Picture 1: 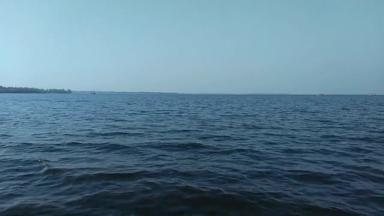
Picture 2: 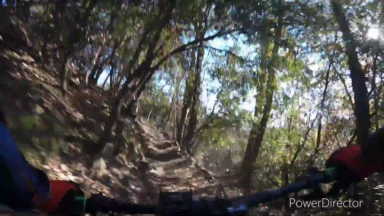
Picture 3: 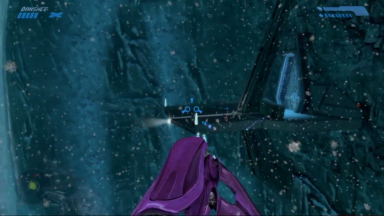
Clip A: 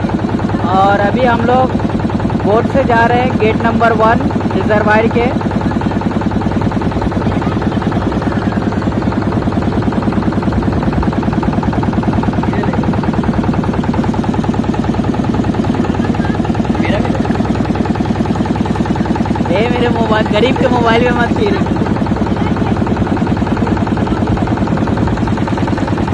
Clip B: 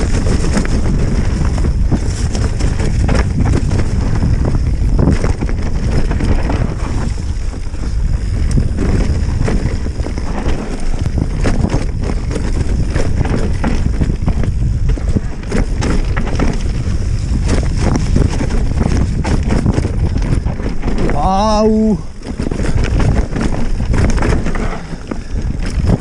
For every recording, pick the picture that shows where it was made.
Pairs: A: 1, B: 2